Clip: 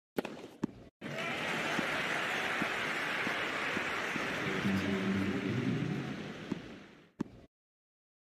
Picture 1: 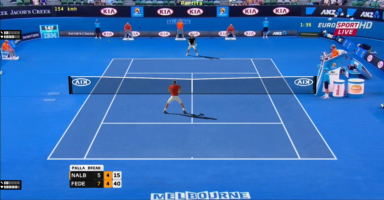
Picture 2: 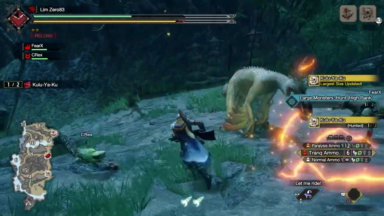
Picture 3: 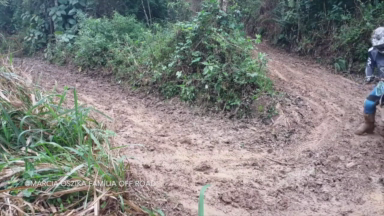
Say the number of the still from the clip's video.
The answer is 1